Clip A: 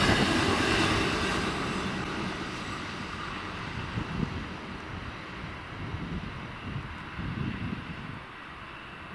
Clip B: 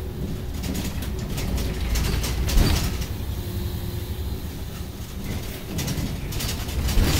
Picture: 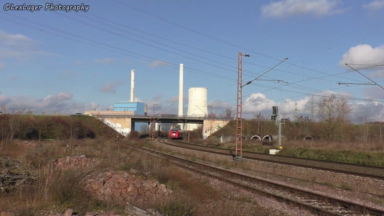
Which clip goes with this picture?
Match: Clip A